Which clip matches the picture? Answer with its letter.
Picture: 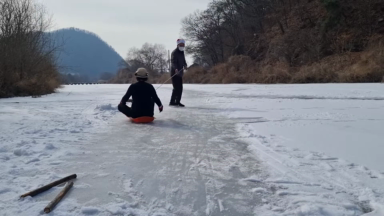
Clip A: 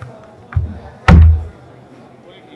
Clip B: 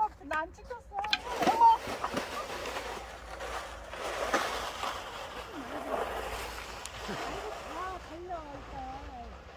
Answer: B